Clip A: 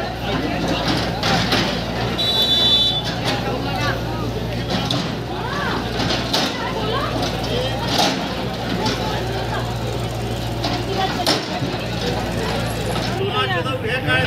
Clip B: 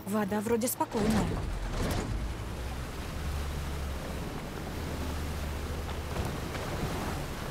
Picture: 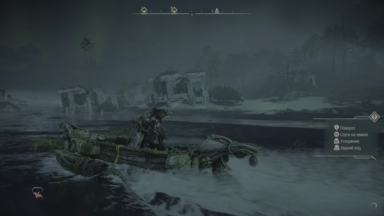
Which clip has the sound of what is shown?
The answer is B